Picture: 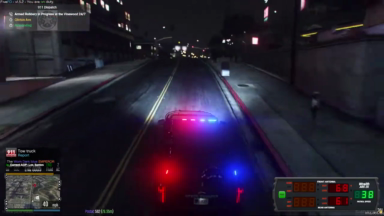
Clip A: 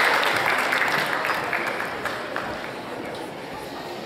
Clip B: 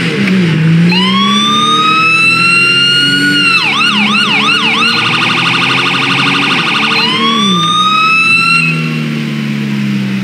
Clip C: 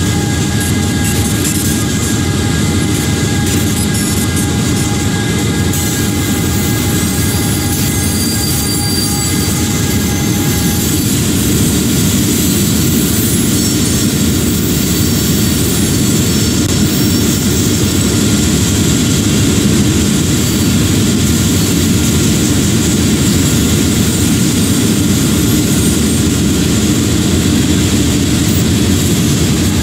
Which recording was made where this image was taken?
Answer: B